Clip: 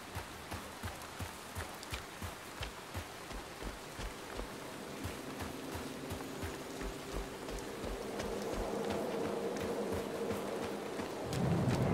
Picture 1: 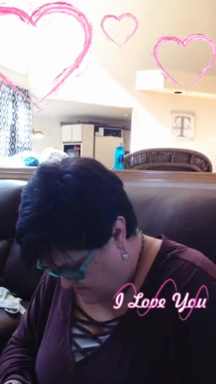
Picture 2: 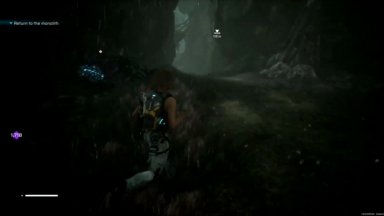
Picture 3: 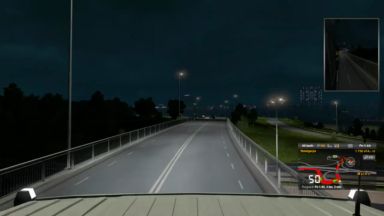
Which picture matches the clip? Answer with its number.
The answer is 2